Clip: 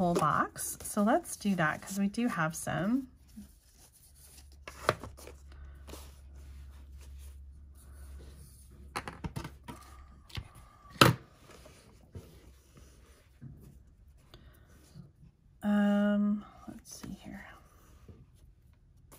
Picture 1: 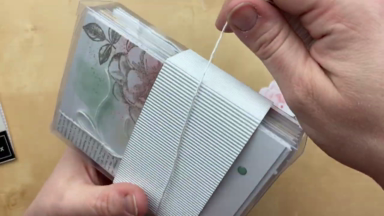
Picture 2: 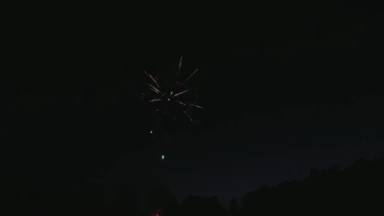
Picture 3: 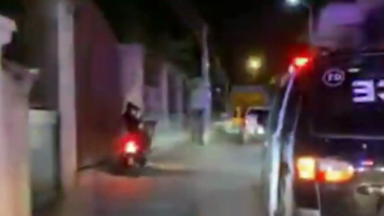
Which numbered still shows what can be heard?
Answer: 1